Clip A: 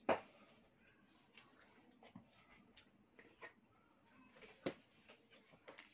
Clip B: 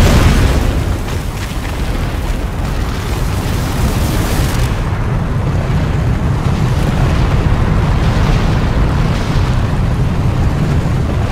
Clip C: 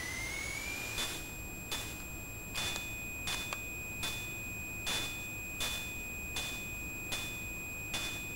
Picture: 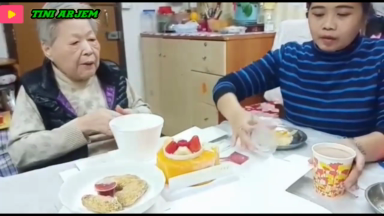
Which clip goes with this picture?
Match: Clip A